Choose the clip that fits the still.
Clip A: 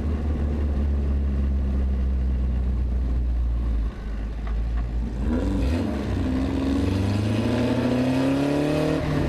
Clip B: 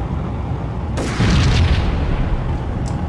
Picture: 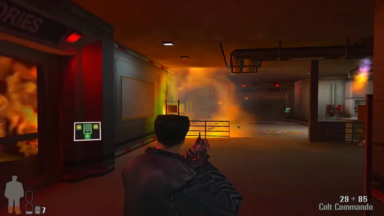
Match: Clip B